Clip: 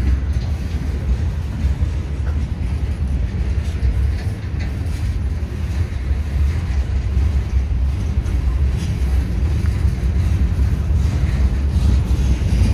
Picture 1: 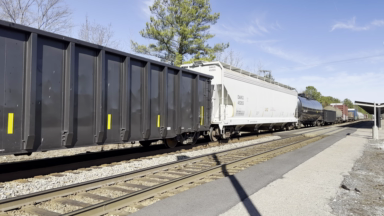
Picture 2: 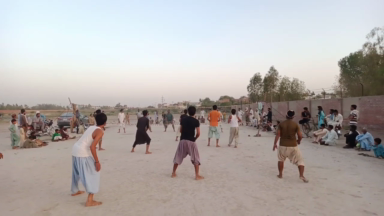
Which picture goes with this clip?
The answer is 1